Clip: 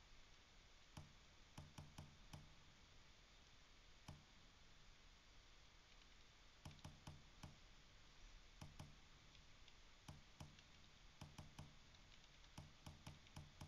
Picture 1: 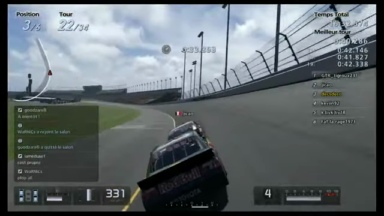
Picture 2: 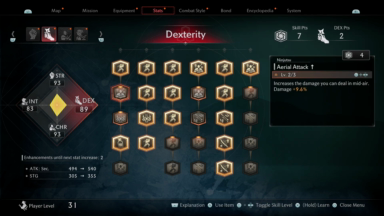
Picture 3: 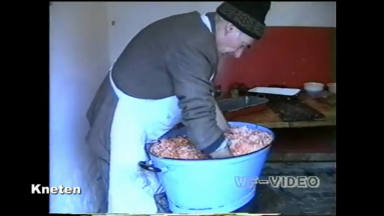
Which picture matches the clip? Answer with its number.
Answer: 2